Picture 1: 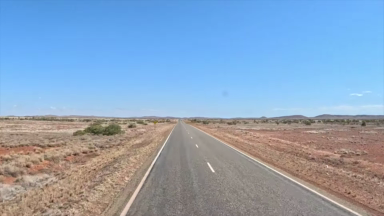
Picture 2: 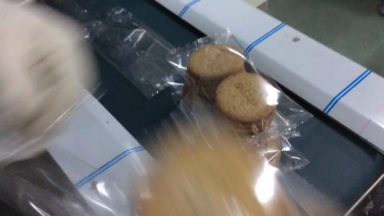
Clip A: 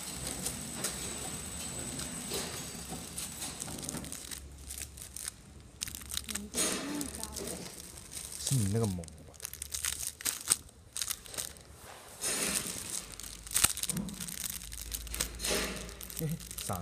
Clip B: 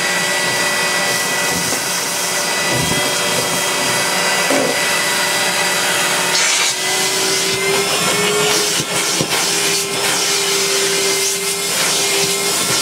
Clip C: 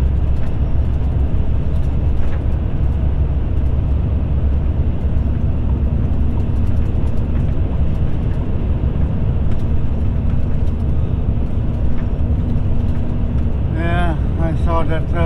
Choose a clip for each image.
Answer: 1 C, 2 A